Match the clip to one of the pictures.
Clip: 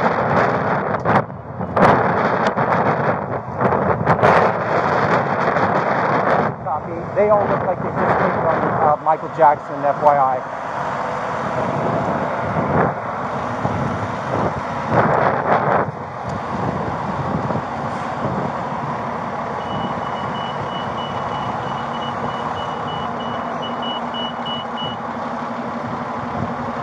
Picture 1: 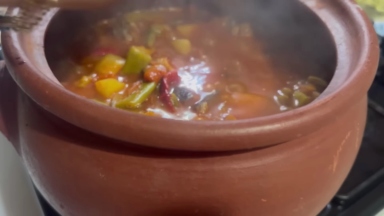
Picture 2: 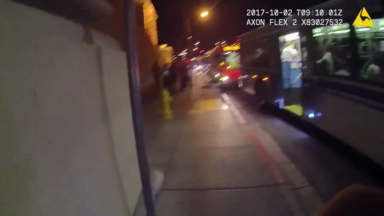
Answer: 2